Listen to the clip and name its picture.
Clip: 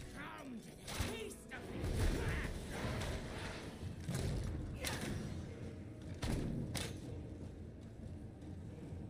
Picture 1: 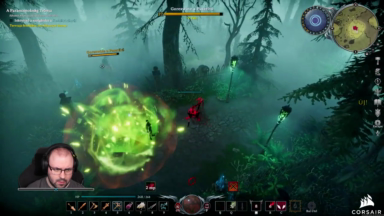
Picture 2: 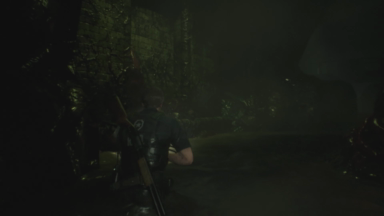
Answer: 1